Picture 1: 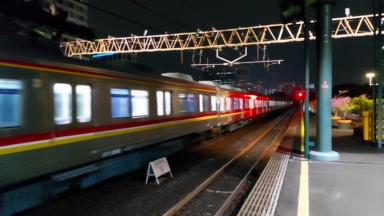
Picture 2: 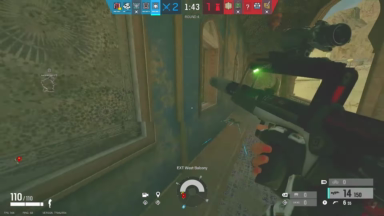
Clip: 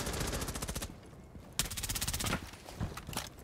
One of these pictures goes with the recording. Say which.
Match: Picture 2